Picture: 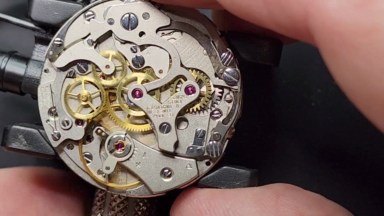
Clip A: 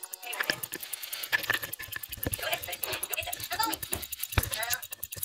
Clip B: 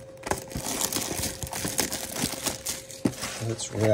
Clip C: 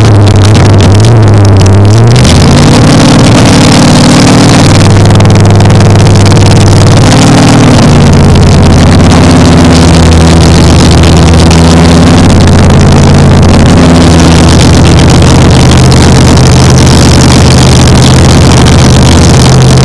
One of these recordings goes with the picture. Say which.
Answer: A